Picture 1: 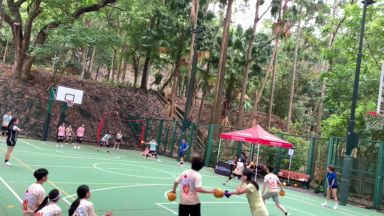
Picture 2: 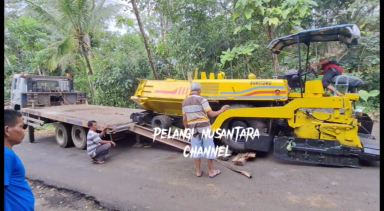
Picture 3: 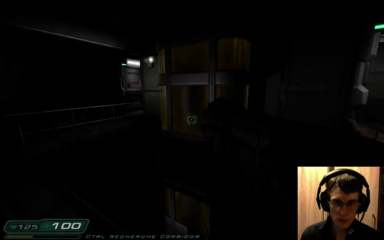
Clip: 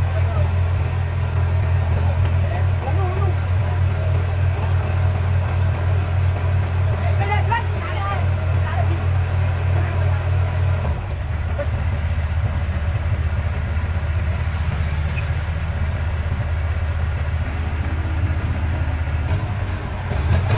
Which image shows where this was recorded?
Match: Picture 2